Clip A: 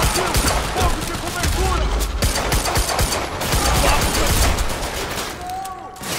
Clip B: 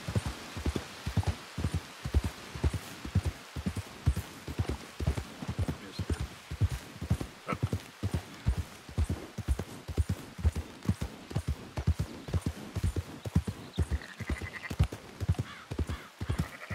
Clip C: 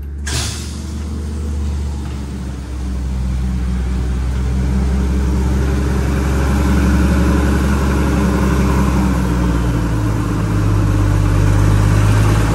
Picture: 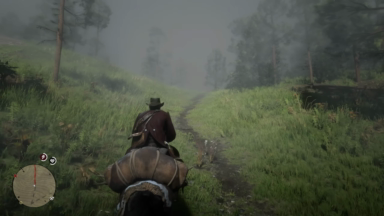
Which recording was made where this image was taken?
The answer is B